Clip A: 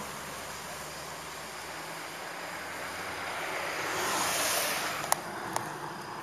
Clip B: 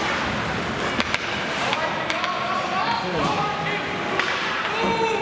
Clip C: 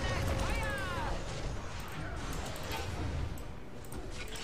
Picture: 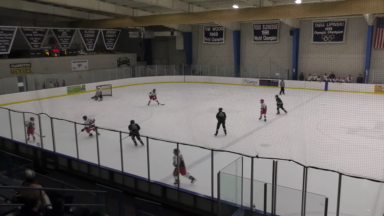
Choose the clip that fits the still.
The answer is B